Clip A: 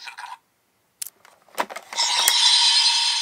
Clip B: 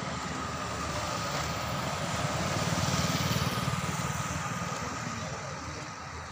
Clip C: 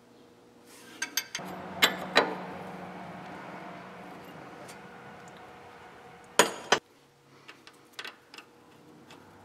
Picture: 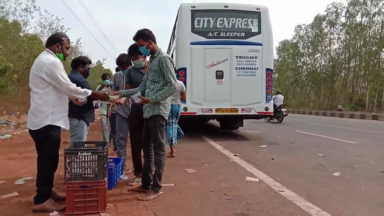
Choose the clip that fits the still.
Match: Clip B